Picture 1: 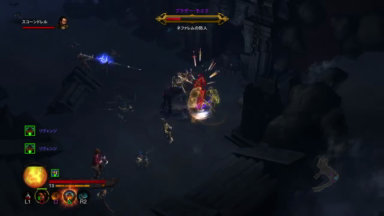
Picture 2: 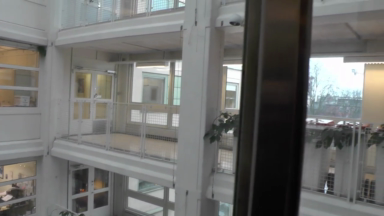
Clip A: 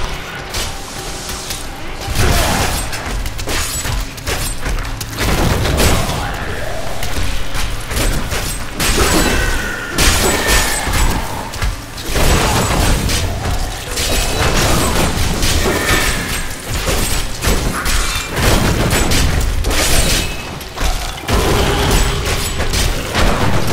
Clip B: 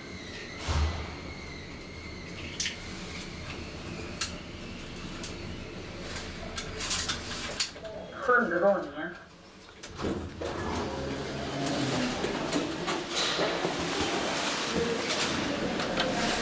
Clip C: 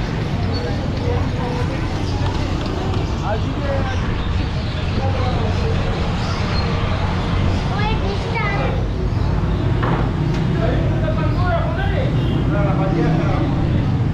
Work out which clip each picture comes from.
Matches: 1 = A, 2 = B